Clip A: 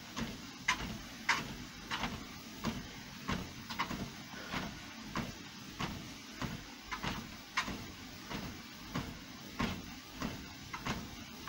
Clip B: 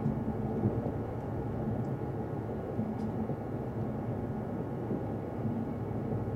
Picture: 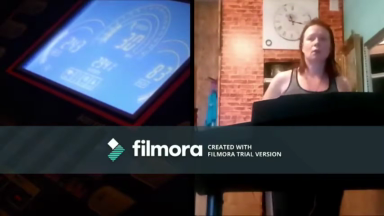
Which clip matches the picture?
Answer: A